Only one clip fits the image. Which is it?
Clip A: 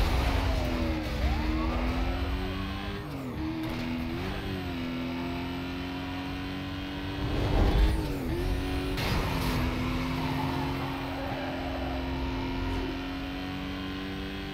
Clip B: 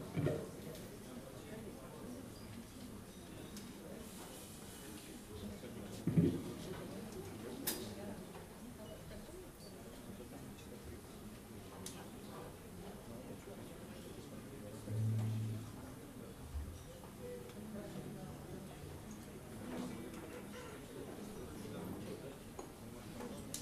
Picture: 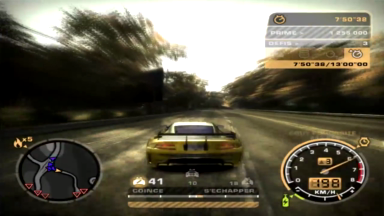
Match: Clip A